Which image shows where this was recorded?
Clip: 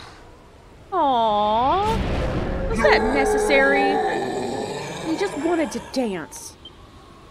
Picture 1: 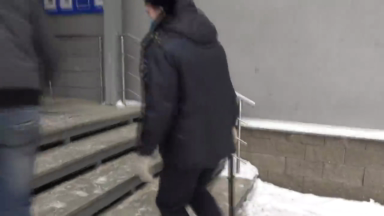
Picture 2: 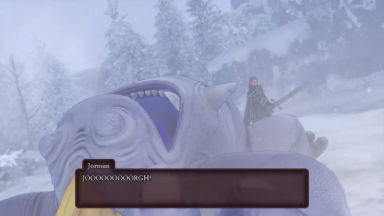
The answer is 2